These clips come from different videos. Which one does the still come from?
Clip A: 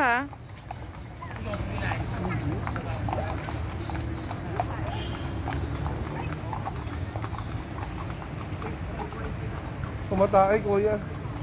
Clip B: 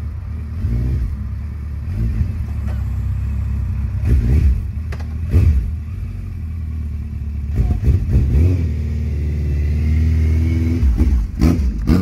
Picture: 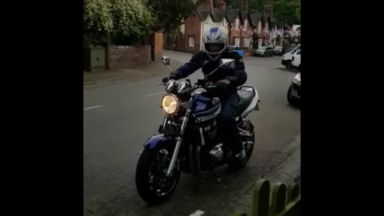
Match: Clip B